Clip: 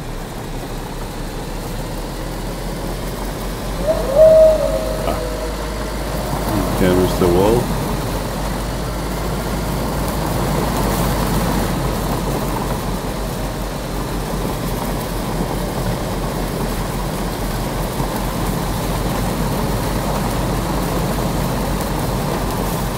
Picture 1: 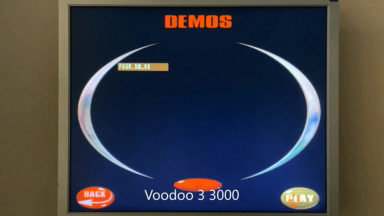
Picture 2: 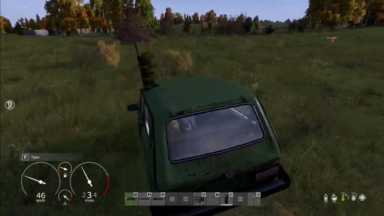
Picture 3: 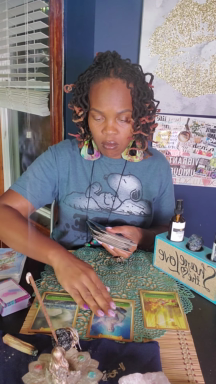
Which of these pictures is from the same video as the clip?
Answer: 2